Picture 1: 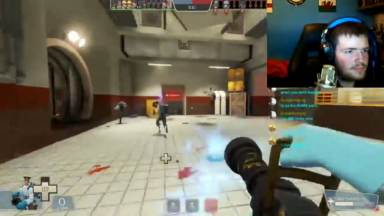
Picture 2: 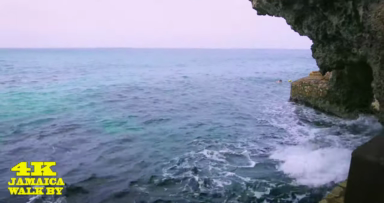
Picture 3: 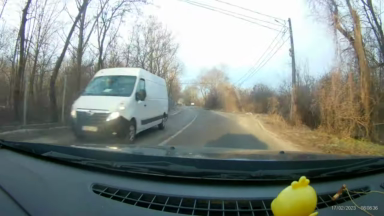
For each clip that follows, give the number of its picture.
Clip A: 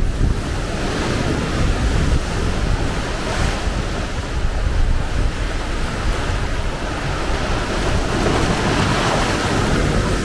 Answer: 2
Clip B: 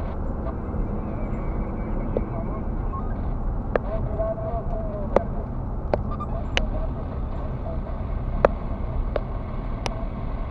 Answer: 3